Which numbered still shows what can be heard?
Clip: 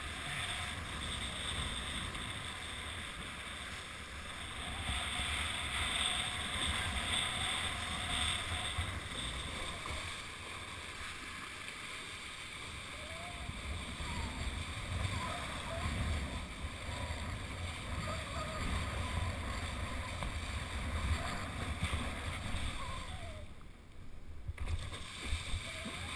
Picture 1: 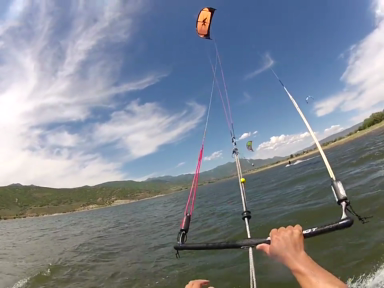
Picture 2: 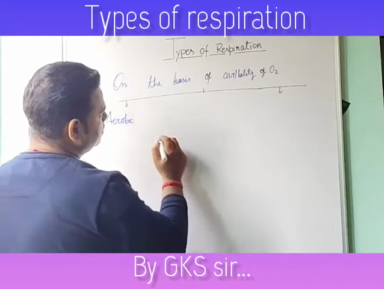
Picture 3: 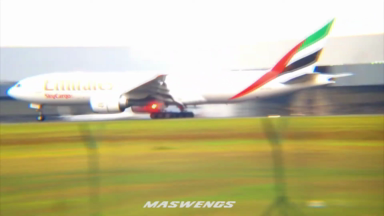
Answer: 1